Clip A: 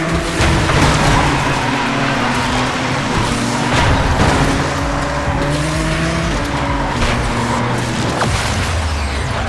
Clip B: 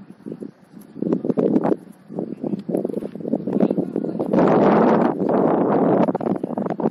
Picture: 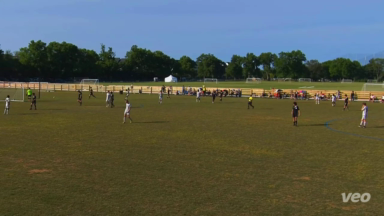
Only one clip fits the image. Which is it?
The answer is B